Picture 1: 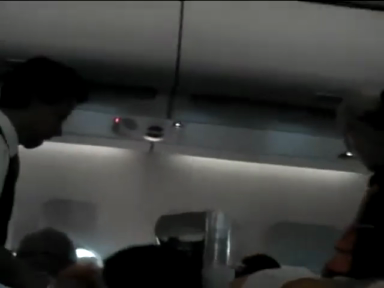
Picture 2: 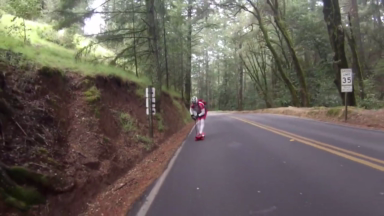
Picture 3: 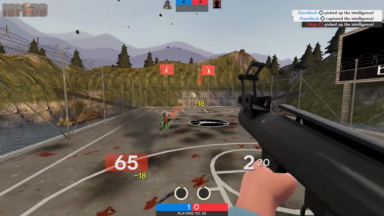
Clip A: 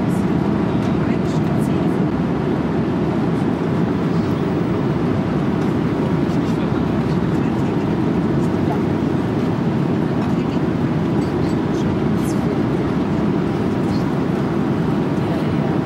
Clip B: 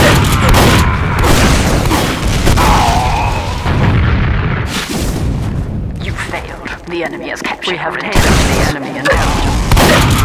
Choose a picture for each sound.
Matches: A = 1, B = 3